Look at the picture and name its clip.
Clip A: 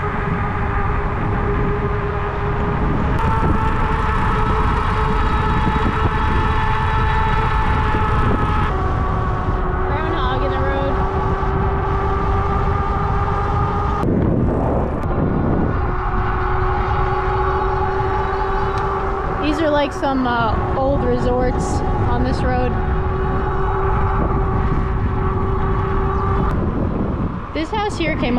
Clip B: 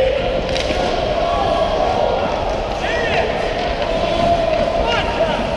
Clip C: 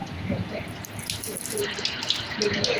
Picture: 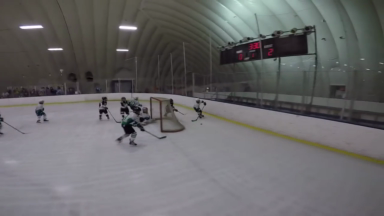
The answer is B